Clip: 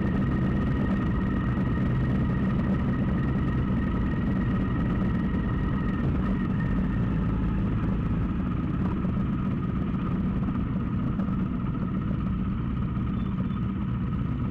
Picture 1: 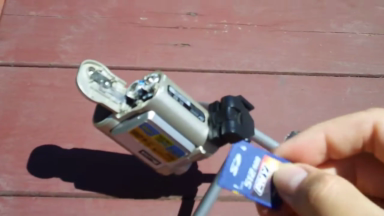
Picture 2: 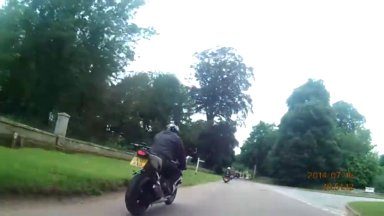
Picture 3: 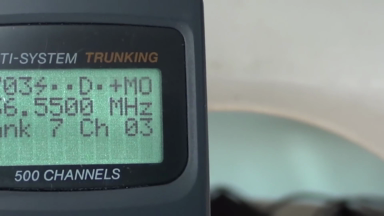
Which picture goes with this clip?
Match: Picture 2